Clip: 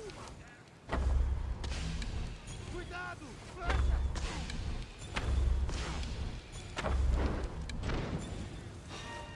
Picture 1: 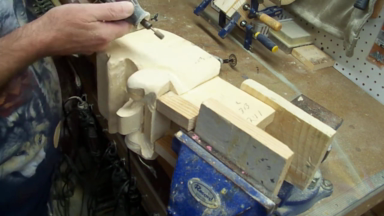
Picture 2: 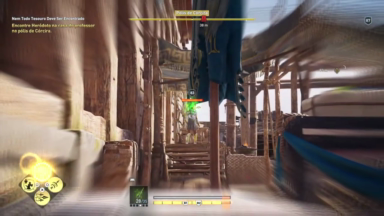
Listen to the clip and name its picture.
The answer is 2